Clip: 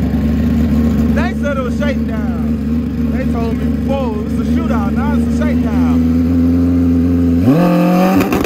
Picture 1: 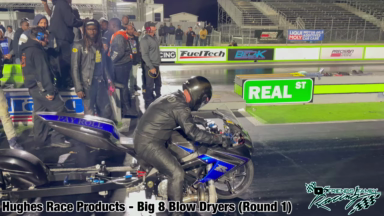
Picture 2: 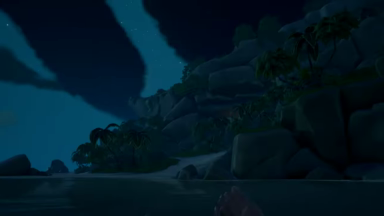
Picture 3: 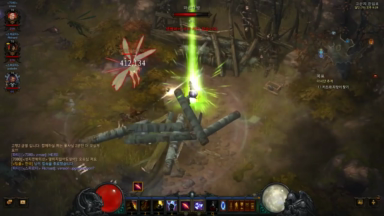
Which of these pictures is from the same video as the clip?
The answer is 1